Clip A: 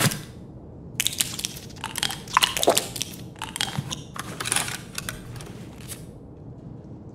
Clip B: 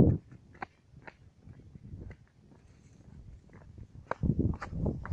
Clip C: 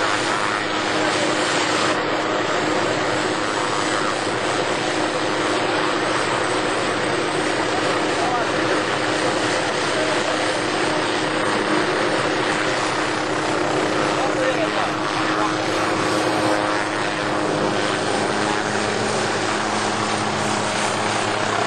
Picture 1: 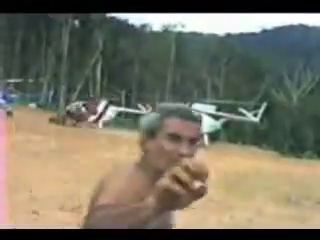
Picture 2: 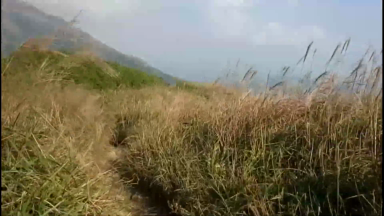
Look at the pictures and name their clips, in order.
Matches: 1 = C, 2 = B